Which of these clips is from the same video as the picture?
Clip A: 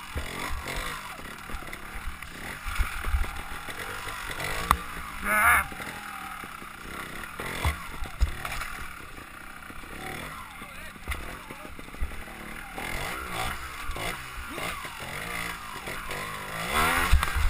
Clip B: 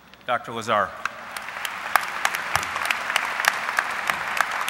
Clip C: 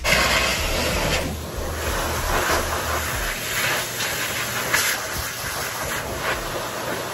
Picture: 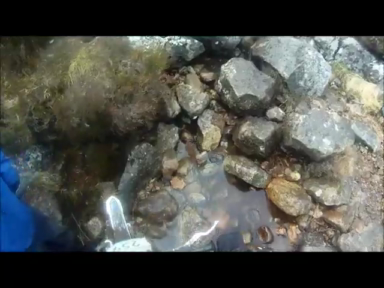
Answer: A